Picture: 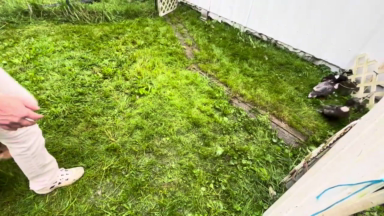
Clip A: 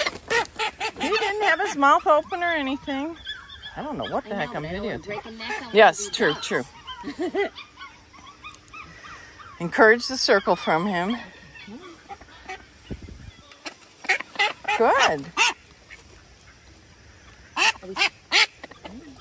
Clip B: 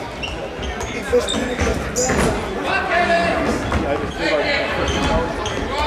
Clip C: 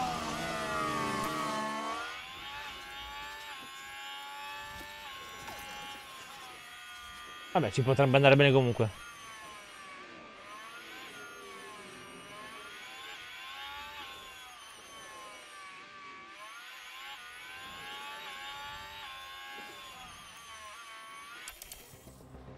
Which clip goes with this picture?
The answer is A